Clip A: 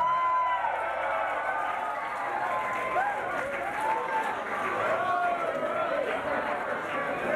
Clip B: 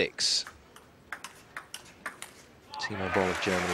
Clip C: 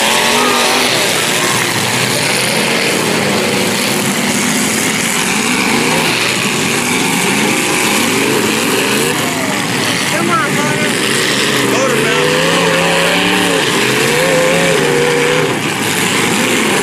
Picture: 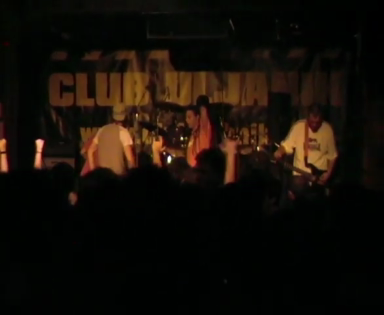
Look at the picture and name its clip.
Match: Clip A